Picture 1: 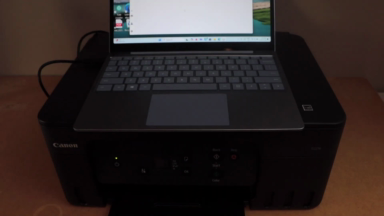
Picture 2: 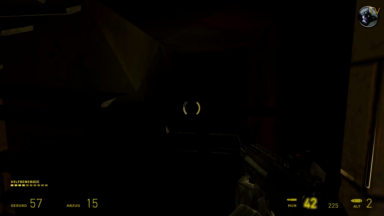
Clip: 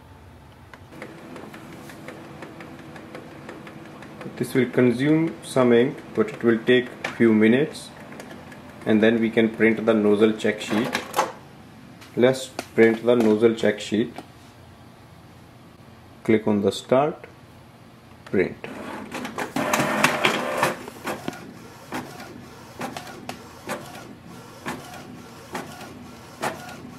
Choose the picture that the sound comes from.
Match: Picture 1